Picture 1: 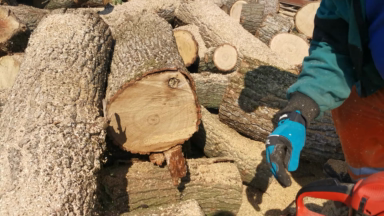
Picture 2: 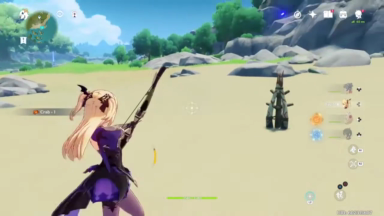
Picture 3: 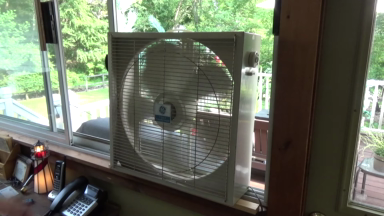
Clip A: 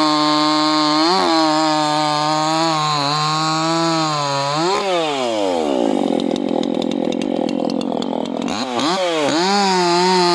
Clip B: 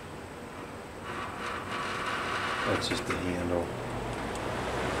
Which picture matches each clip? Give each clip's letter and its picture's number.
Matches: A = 1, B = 3